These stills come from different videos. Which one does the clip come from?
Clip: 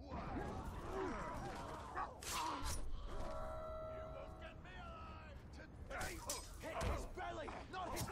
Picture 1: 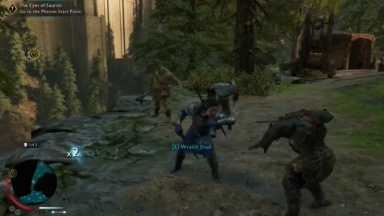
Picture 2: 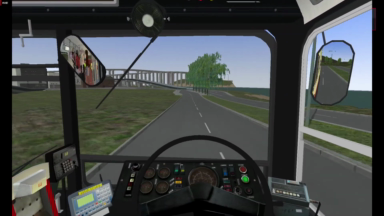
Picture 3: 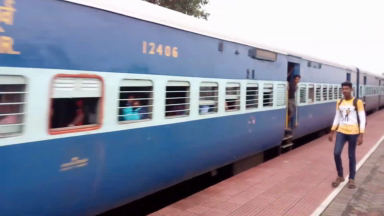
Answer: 1